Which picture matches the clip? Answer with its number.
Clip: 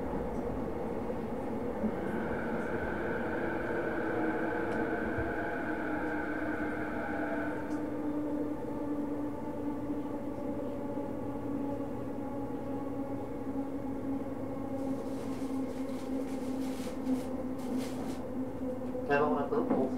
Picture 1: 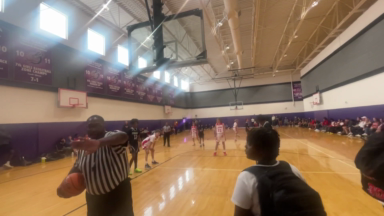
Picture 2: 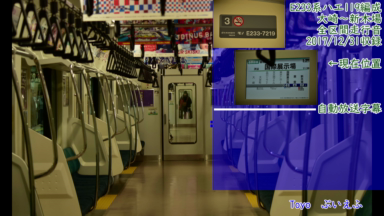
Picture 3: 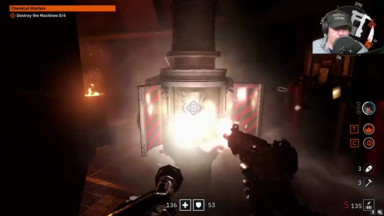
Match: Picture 2